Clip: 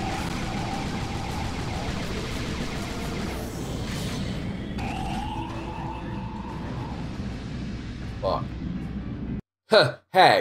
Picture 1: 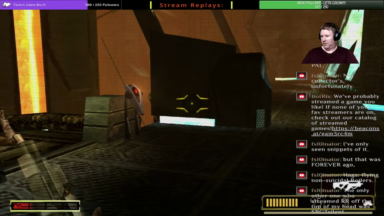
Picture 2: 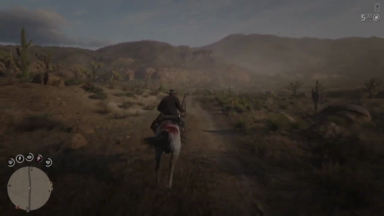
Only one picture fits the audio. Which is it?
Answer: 1